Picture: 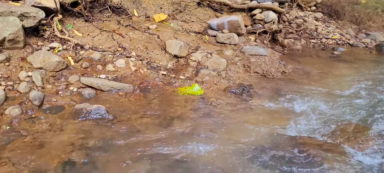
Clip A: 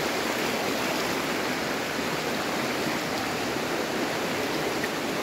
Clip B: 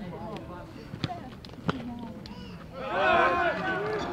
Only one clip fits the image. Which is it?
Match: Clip A